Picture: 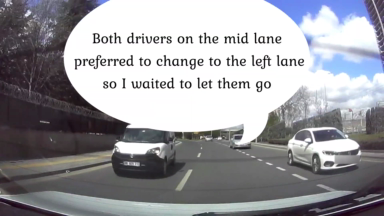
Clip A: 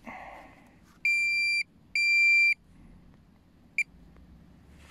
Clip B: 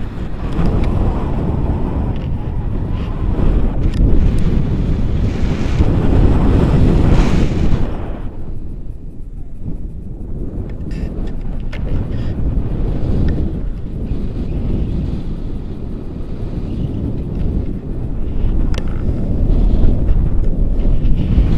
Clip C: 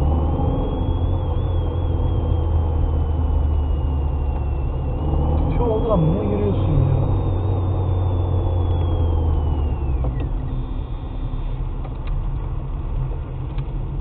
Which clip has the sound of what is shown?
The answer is C